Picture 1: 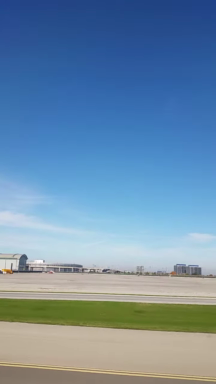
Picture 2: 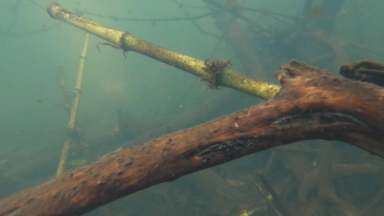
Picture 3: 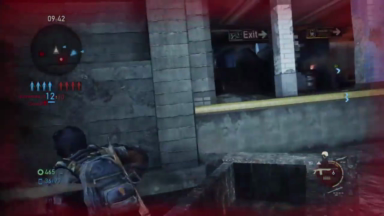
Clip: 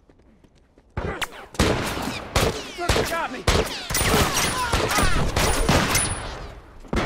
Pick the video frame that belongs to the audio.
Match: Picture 3